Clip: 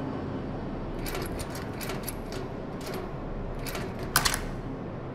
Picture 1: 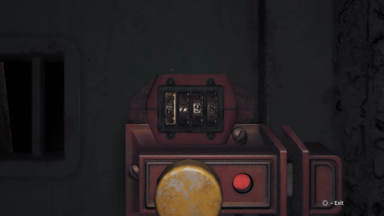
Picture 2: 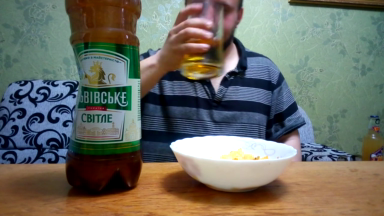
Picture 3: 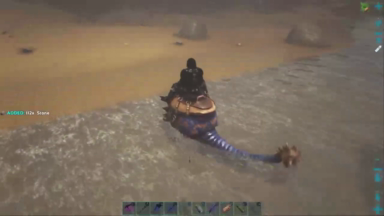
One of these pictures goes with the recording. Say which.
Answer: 1